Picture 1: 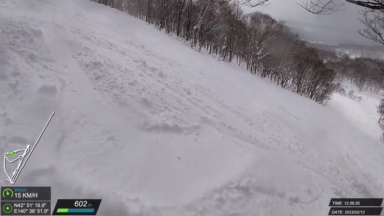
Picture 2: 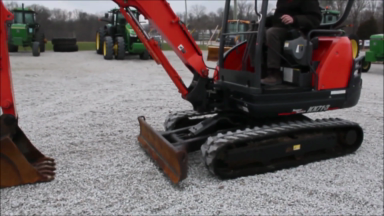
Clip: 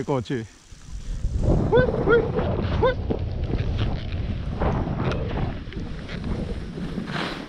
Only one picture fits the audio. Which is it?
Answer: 1